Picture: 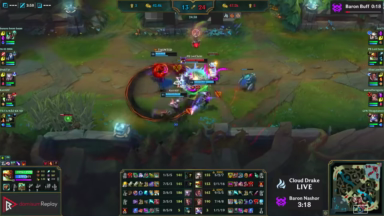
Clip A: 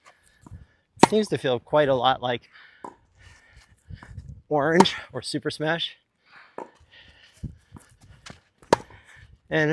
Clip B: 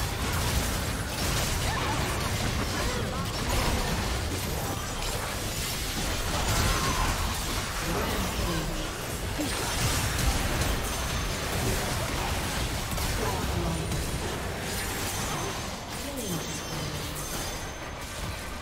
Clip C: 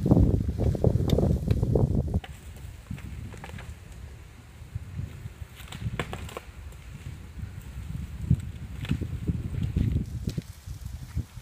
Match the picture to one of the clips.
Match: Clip B